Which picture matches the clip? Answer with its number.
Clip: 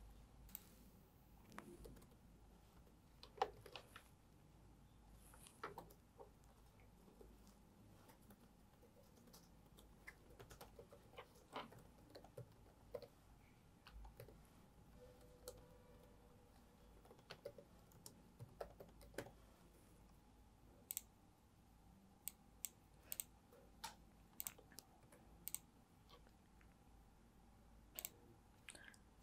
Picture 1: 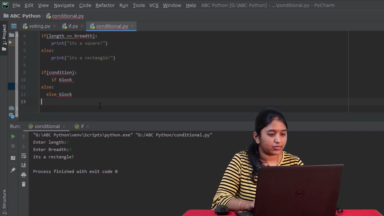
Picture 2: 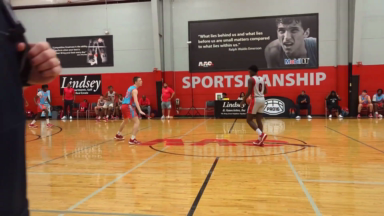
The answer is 1